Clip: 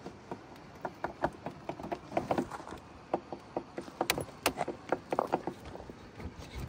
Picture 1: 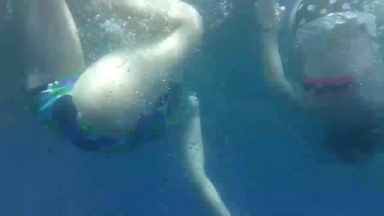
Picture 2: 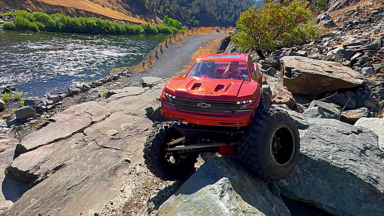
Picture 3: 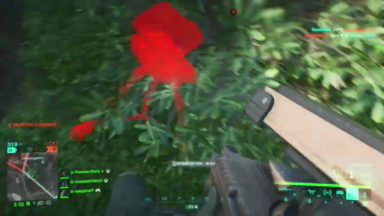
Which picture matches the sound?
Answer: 2